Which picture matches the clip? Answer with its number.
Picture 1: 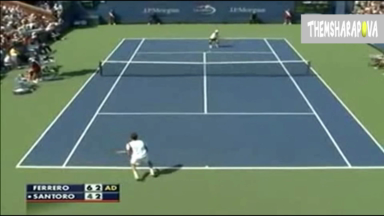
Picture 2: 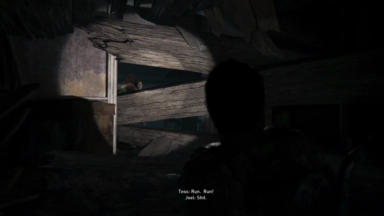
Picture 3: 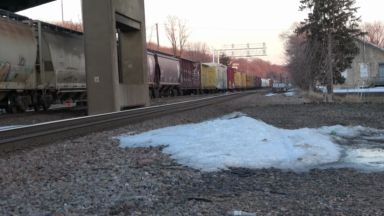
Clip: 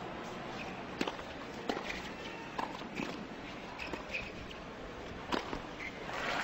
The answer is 1